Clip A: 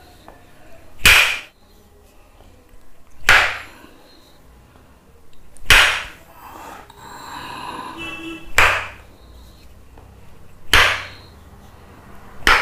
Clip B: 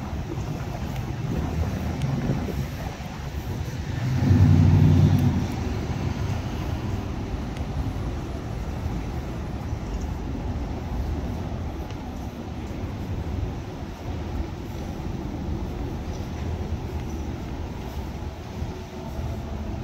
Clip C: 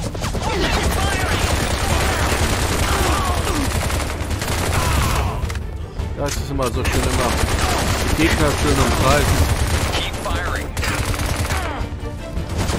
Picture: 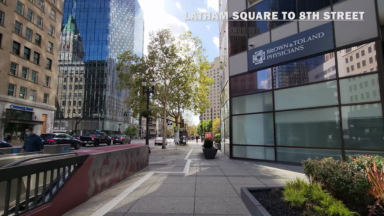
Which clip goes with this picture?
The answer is B